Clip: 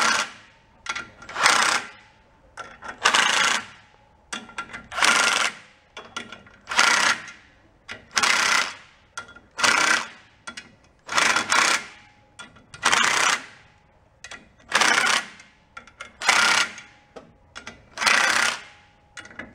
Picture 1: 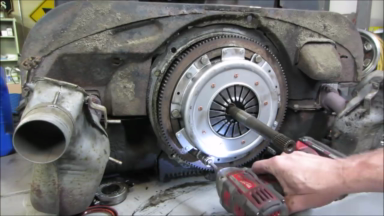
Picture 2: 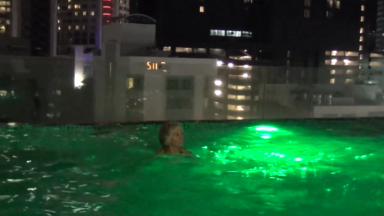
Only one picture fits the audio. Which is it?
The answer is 1